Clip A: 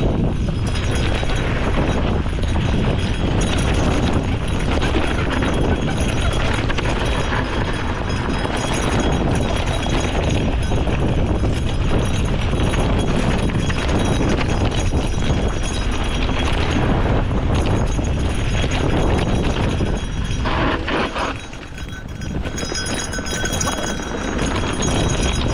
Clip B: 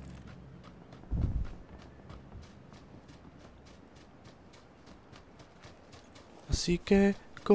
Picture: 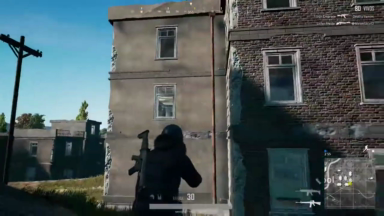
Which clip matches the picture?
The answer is B